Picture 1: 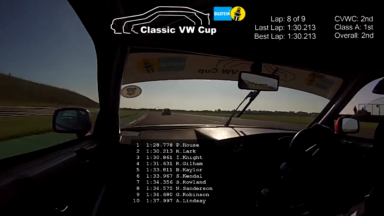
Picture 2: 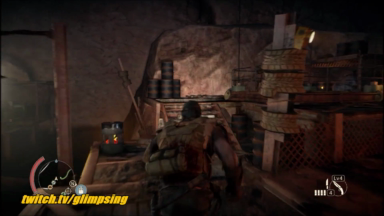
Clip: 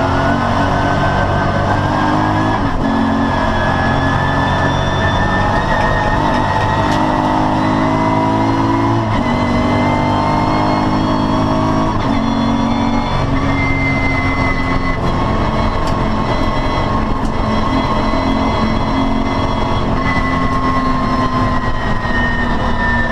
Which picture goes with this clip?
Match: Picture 1